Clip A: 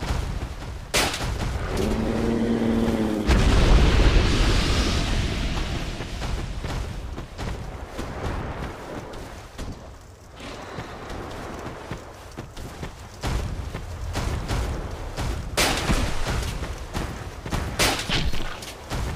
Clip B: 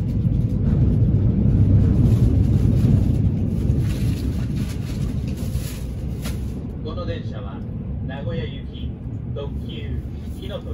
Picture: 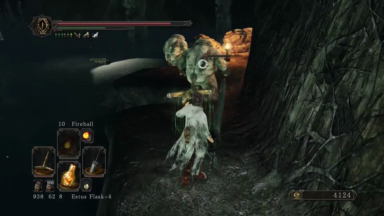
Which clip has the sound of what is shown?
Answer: A